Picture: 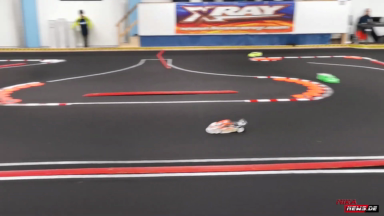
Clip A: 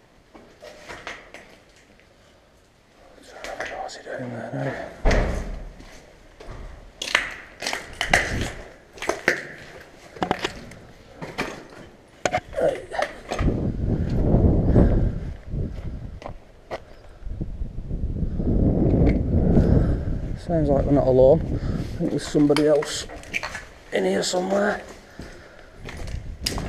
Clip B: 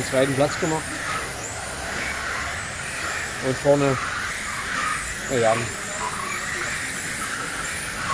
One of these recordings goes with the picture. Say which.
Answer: B